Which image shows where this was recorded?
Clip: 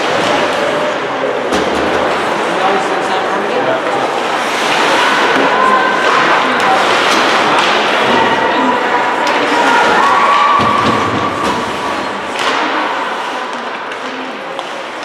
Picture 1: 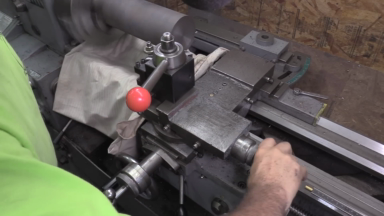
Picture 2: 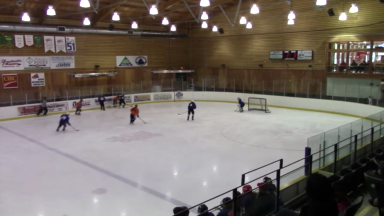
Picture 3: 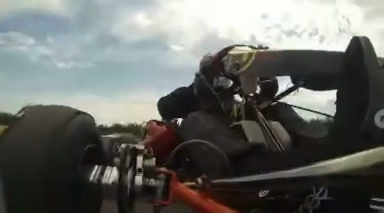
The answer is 2